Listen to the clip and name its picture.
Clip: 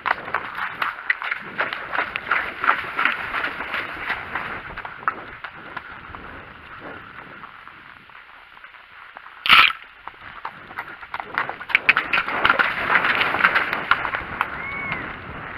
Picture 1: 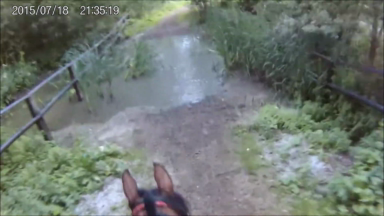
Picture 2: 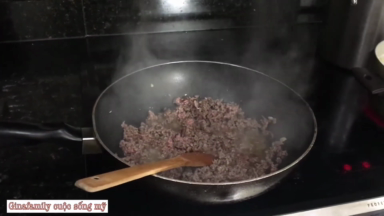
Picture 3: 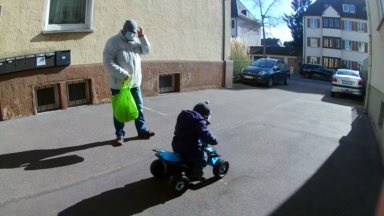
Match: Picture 1